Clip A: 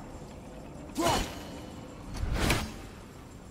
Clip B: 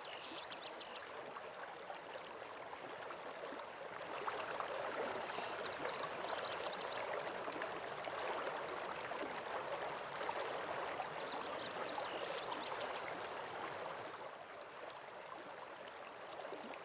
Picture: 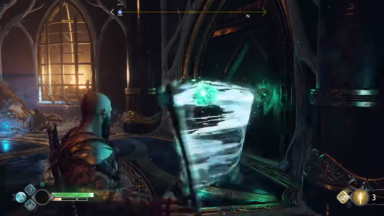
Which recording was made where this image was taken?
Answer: A